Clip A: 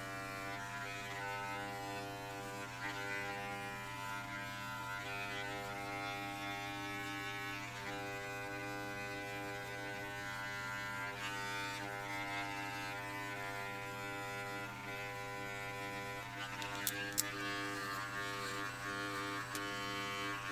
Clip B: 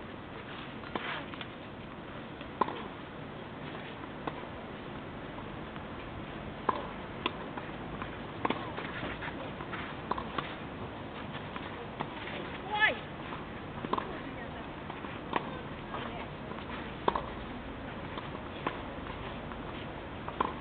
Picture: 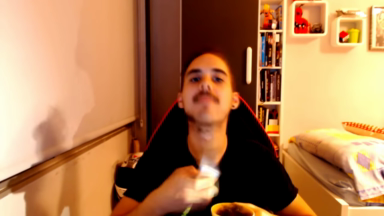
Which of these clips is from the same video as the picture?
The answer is A